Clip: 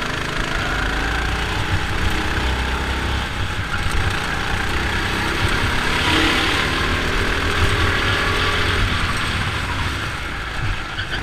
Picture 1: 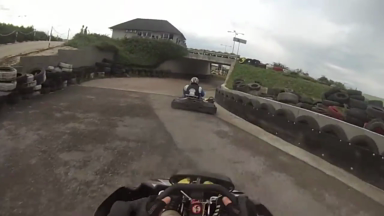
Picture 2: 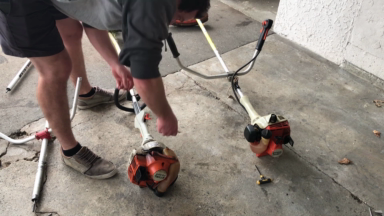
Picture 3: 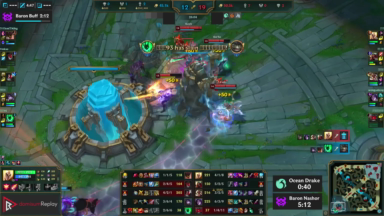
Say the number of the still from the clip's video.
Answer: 1